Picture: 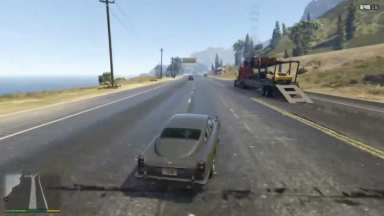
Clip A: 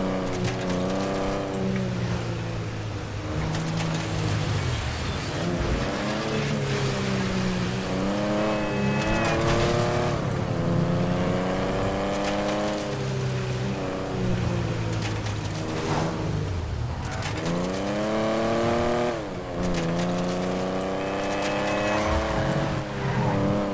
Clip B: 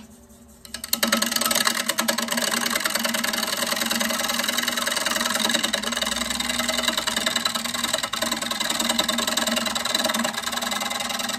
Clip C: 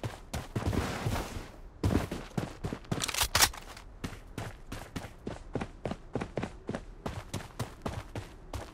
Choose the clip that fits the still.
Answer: A